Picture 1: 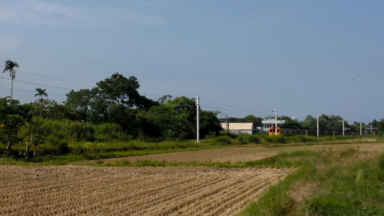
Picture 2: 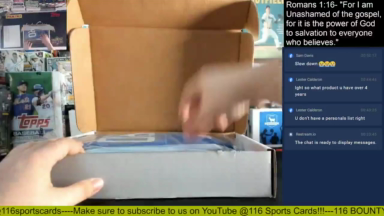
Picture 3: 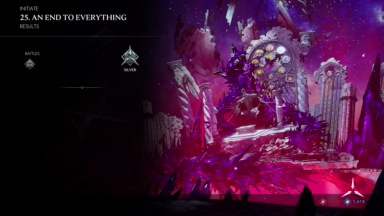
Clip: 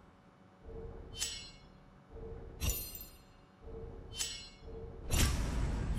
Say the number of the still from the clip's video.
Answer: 3